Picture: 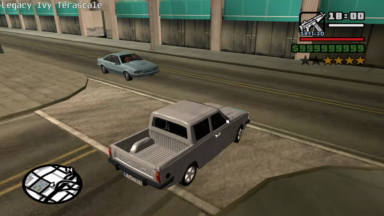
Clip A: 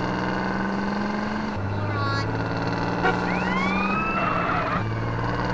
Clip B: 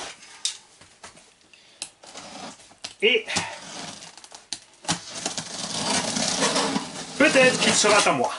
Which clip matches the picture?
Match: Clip A